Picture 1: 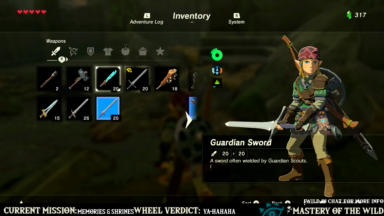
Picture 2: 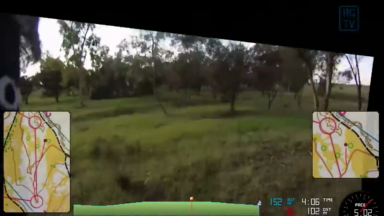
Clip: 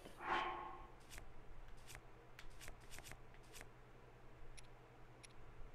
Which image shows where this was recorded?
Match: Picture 1